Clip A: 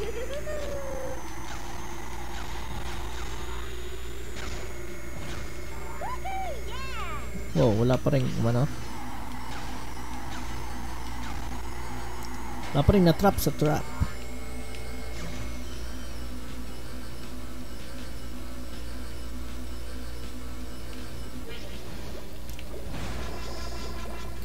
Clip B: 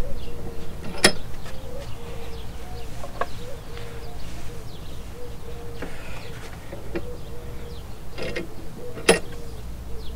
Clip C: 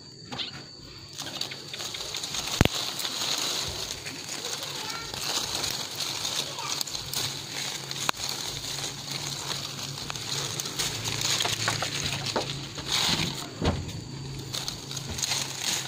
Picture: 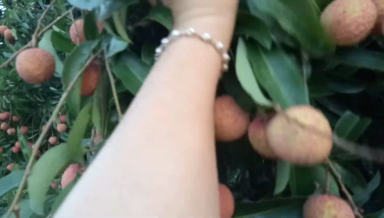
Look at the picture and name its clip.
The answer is C